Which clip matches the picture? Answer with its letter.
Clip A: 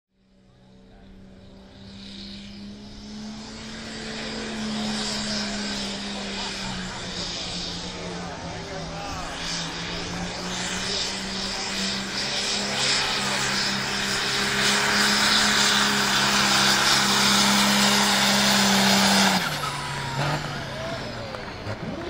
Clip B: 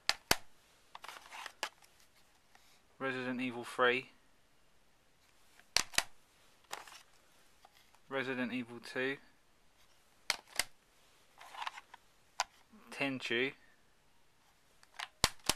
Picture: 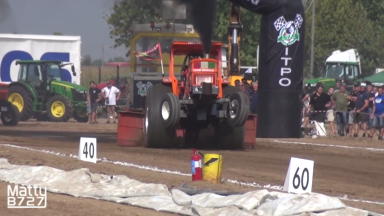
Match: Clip A